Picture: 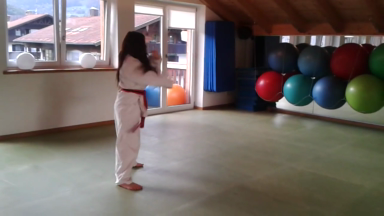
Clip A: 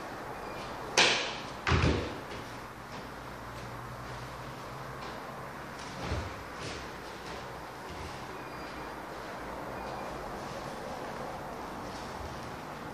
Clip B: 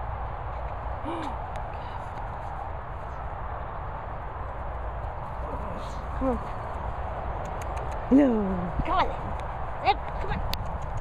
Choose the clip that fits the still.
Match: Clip A